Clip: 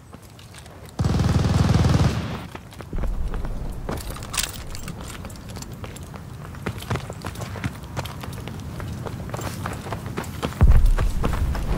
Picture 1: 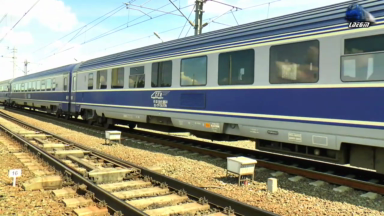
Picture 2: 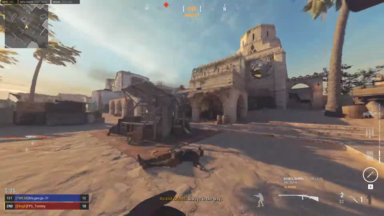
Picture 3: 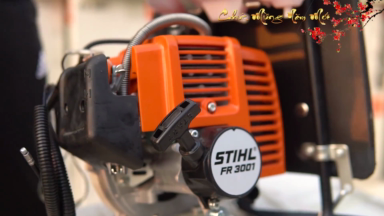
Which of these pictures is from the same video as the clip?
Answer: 2